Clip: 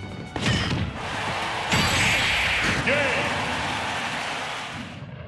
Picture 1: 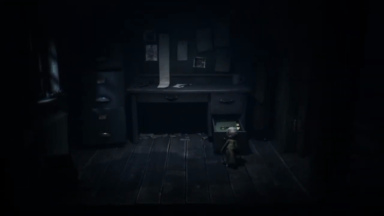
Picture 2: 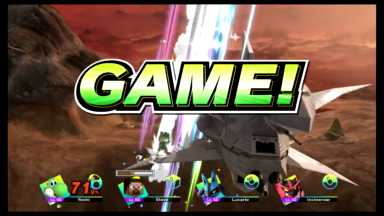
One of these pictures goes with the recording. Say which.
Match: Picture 2